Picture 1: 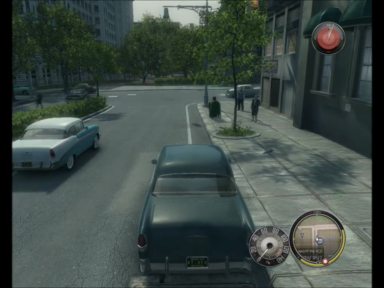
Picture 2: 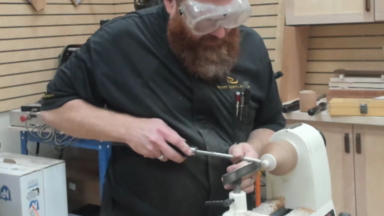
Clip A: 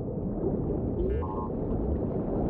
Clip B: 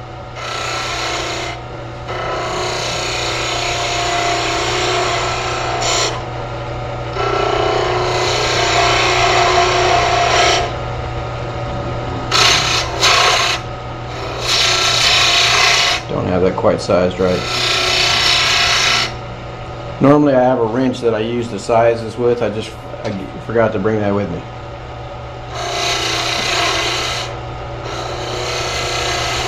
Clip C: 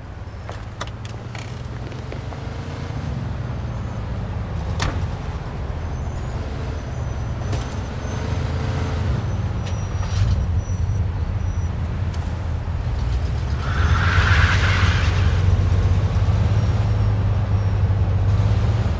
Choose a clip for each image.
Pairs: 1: C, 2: B